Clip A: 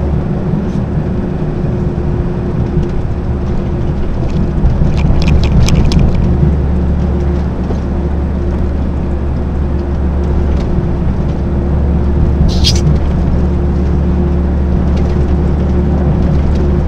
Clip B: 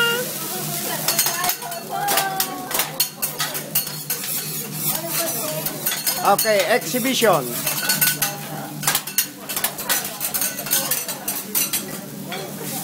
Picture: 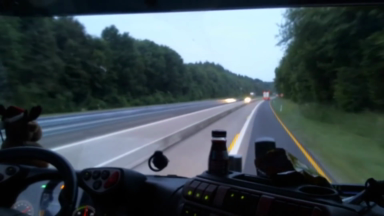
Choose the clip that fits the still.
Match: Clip A